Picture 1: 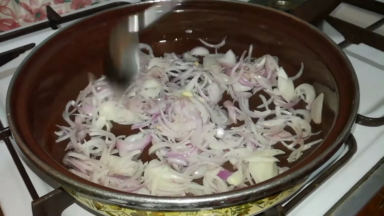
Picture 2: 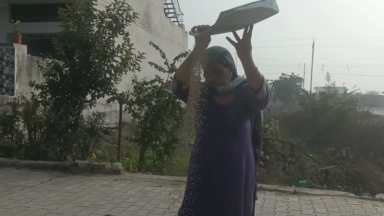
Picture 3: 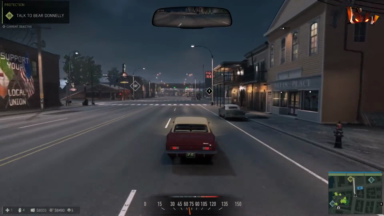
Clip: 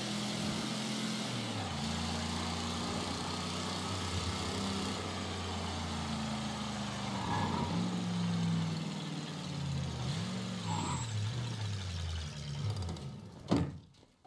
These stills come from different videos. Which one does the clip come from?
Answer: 3